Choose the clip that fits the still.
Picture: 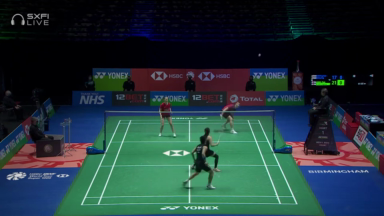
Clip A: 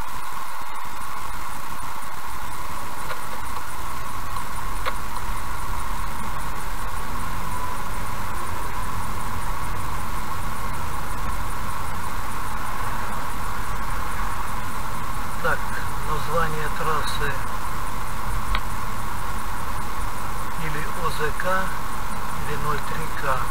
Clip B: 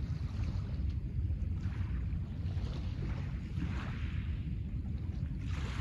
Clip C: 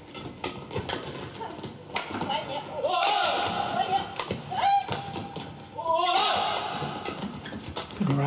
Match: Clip C